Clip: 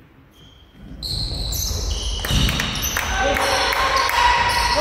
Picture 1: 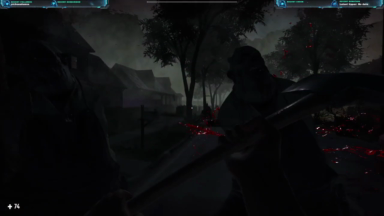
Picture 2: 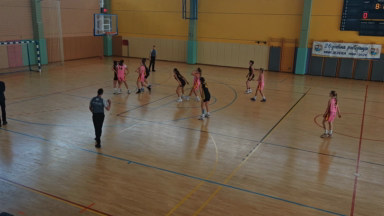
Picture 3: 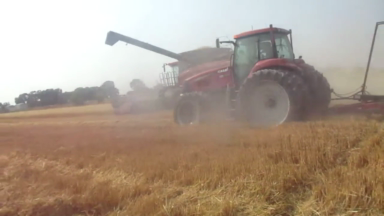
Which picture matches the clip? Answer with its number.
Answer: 2